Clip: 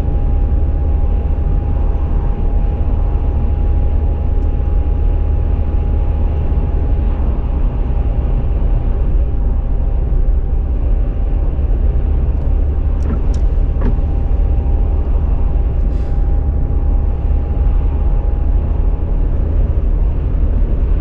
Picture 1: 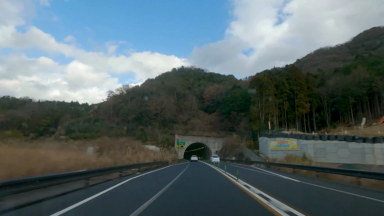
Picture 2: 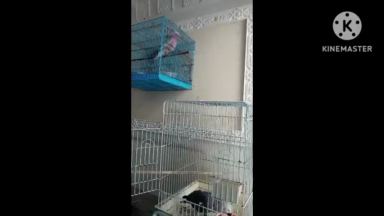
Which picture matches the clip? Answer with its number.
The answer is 1